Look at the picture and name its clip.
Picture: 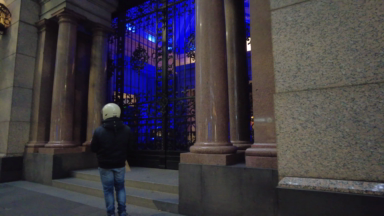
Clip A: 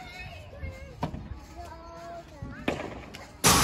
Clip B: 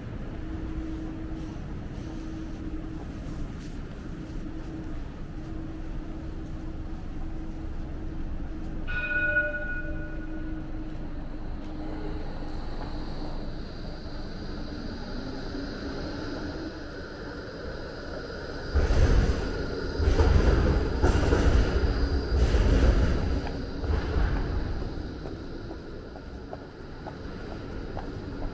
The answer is B